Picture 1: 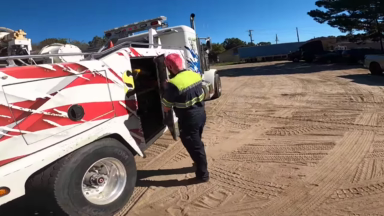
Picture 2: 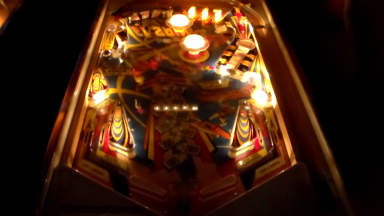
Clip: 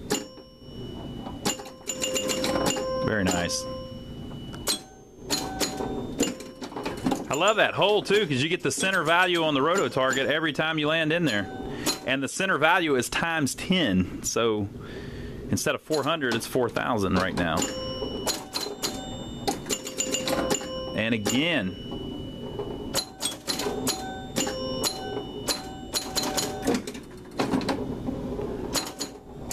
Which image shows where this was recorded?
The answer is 2